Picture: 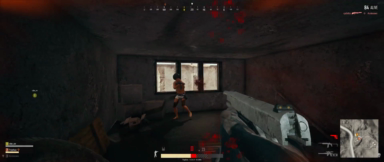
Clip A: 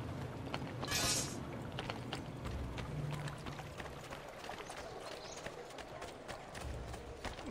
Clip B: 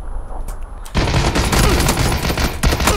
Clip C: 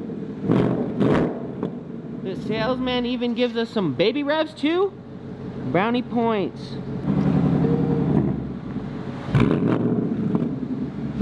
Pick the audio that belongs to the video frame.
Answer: B